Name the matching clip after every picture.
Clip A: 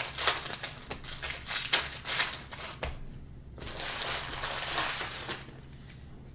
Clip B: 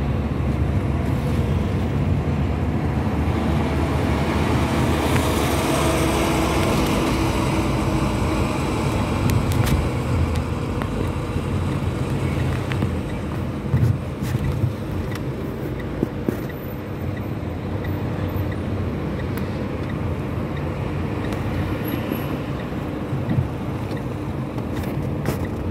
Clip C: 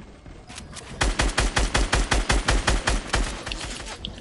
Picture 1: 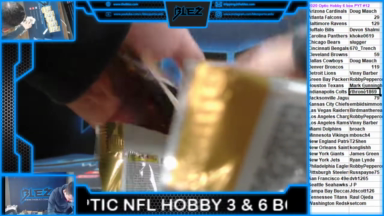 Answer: A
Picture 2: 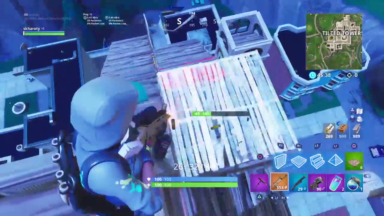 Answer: C